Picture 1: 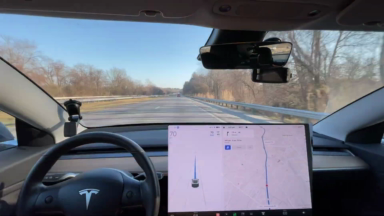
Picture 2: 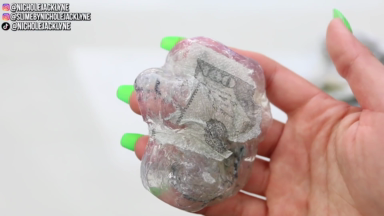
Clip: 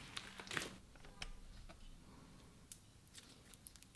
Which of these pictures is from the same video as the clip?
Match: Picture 2